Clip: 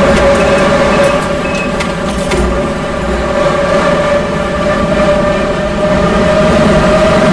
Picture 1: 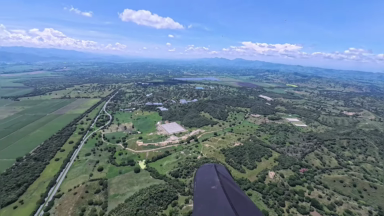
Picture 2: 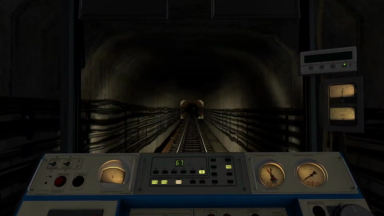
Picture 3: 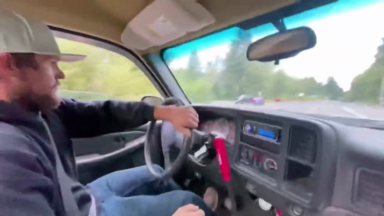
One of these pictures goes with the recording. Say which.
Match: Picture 2